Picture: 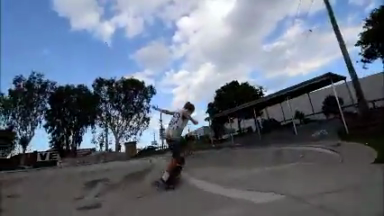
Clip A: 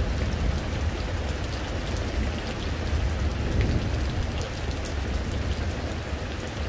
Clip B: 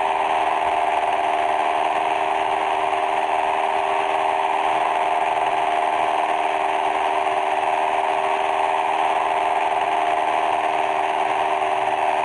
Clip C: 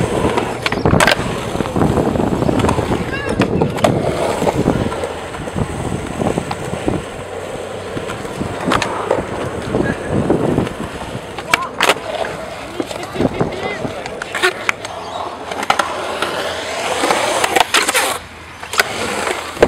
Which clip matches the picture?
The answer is C